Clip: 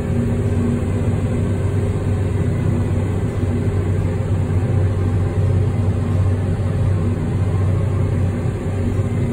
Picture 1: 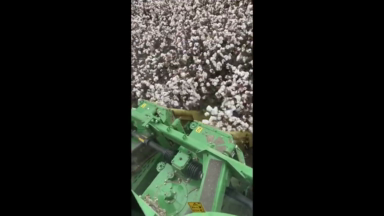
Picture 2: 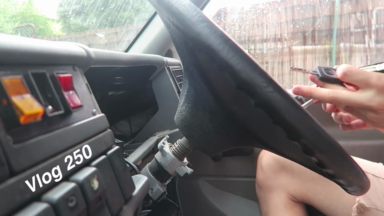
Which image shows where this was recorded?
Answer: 1